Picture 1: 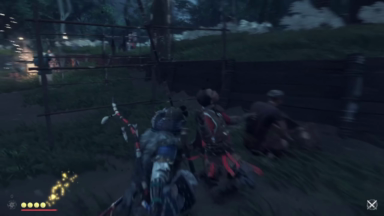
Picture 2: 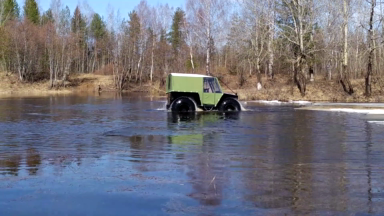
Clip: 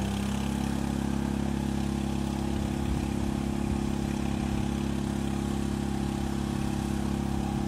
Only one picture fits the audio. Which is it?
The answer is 2